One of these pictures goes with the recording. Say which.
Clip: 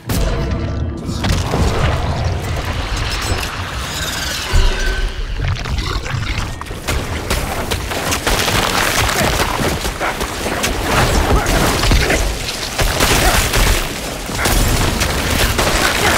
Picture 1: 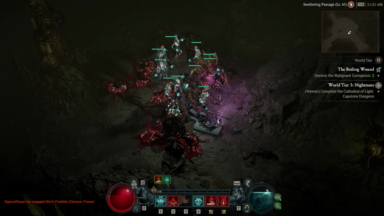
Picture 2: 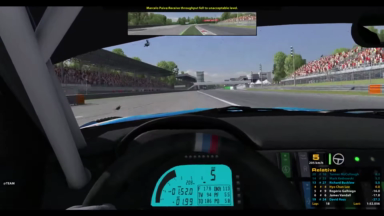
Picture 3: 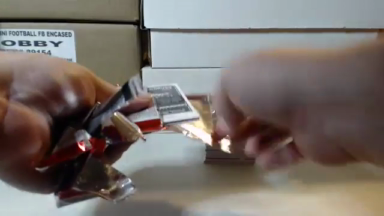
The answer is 1